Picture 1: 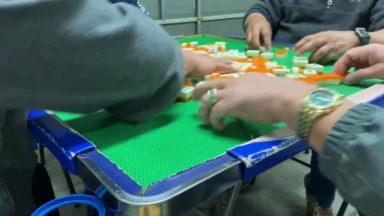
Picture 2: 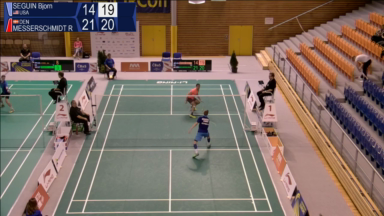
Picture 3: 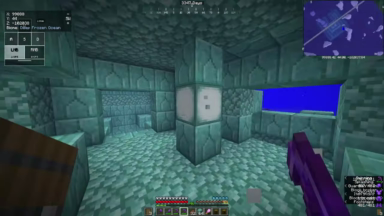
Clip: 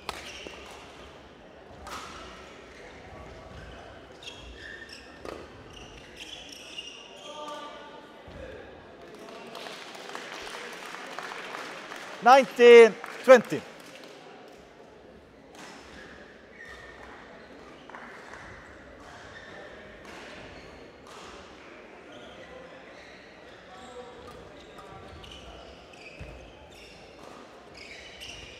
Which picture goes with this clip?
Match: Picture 2